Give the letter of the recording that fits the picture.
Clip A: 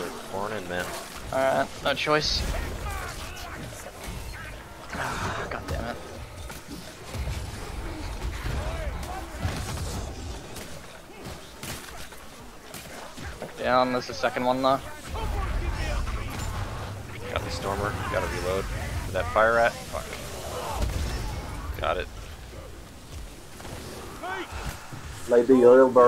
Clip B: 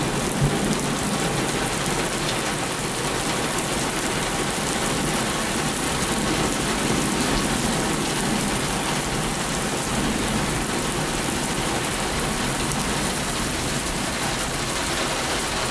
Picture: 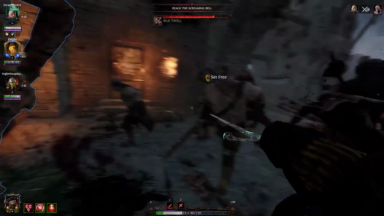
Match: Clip A